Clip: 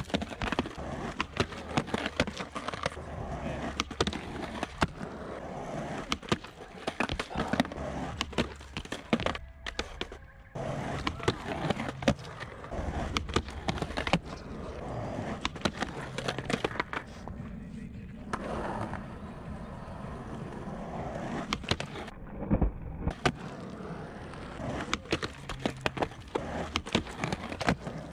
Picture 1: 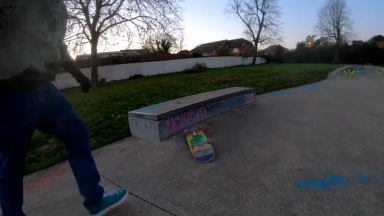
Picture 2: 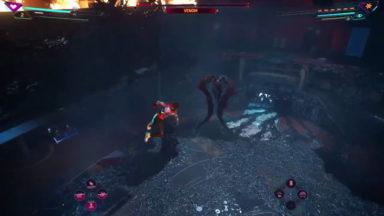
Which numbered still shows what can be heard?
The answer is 1